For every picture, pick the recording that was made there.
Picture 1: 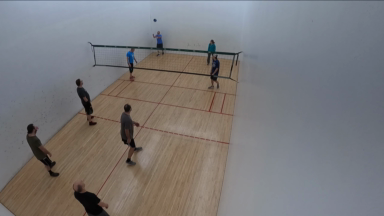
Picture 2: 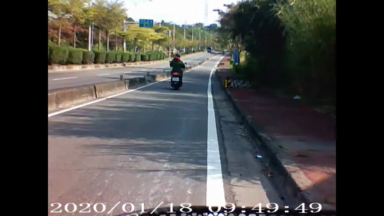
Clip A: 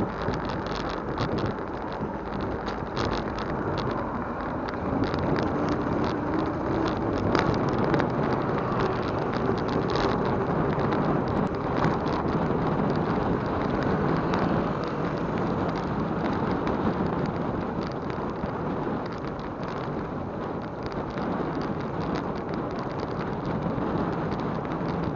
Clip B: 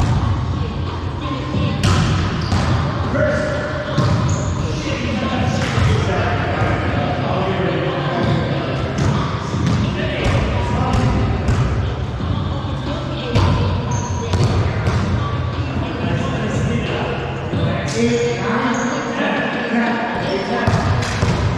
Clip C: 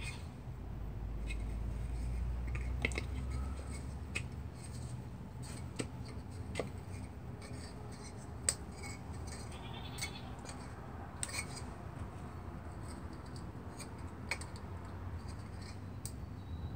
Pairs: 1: B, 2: A